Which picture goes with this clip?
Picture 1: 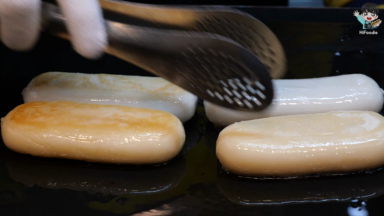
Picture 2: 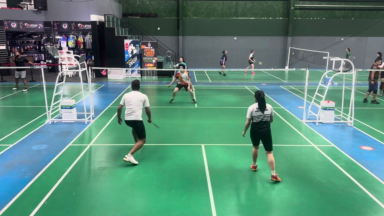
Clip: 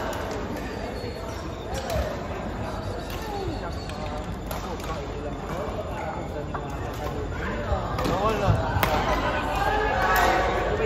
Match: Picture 2